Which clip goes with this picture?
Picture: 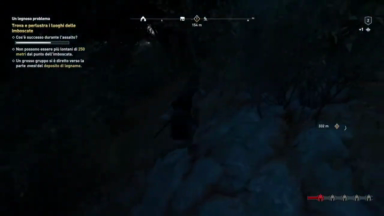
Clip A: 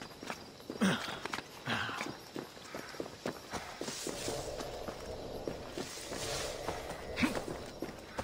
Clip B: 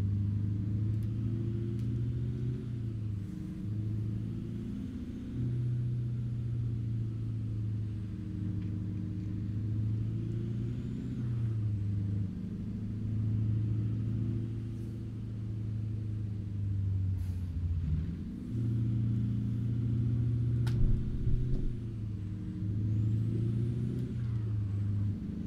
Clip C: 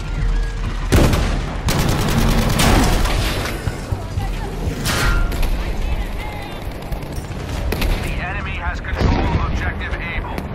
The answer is A